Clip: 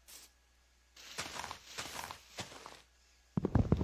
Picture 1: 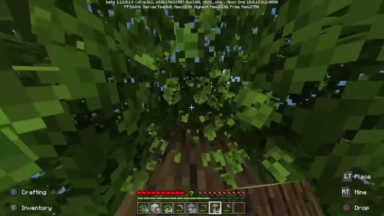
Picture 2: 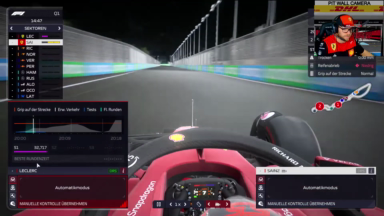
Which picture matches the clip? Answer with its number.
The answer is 1